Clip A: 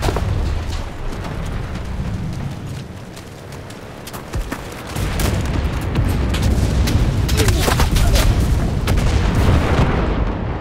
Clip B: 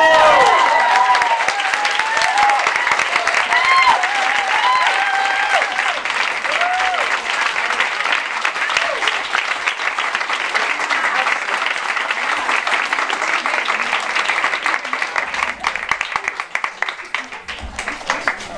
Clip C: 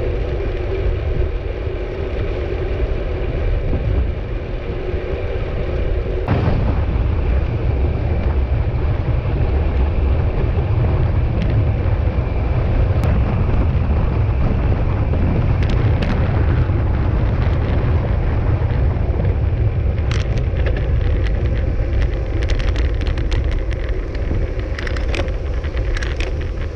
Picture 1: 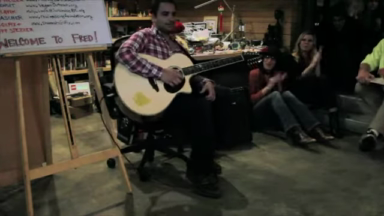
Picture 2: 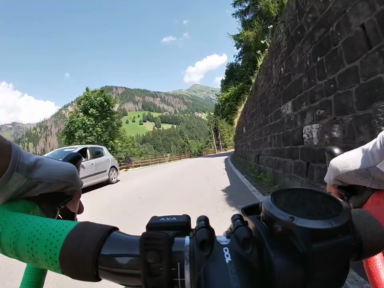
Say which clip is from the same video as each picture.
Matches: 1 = B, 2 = C